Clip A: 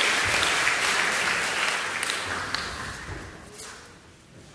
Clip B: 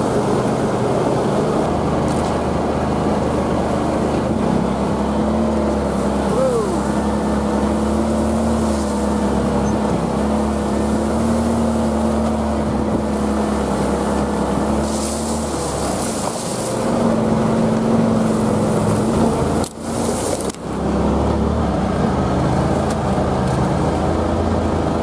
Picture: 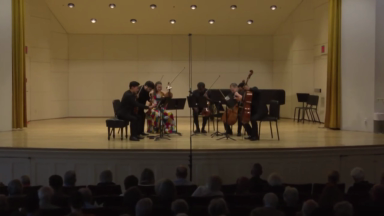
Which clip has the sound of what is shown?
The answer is A